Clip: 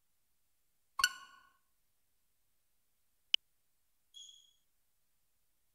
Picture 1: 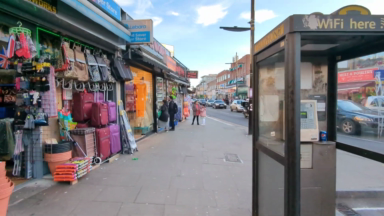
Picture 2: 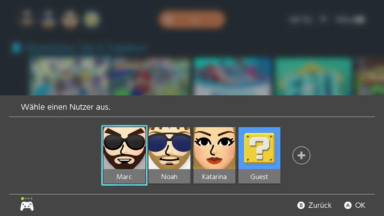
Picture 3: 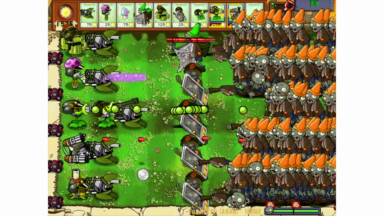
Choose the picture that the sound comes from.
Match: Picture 2